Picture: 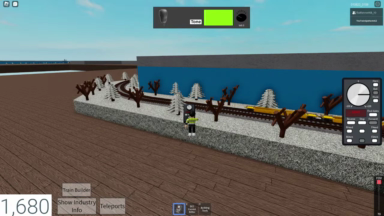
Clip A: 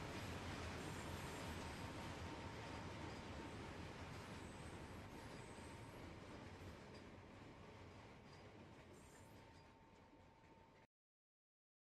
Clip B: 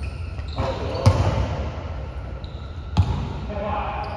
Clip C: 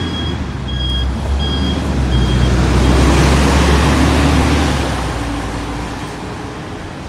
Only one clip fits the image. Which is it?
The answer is A